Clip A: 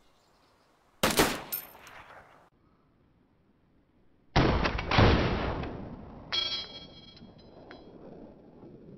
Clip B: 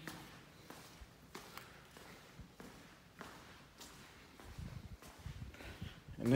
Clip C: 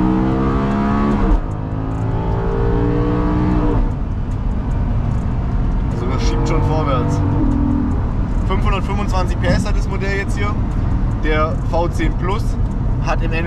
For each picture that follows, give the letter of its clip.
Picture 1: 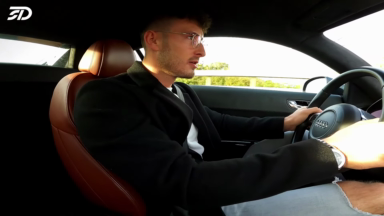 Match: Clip C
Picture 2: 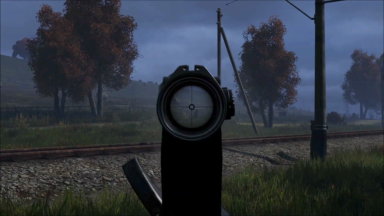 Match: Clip A